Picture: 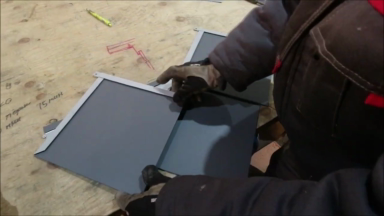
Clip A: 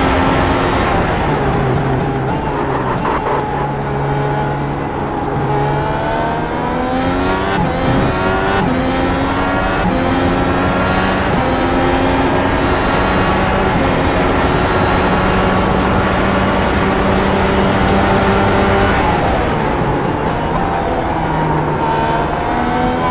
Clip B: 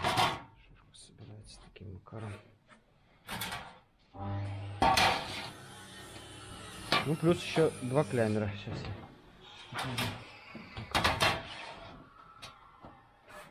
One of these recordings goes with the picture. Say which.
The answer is B